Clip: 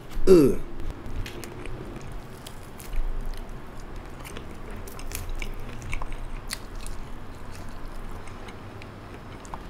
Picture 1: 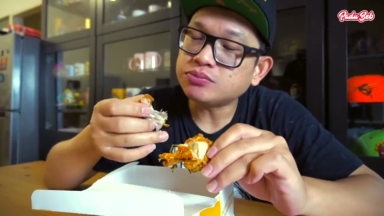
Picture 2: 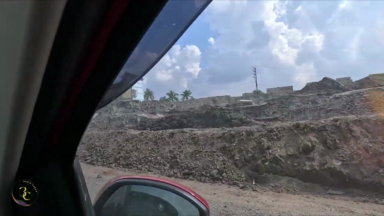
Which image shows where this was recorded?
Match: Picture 1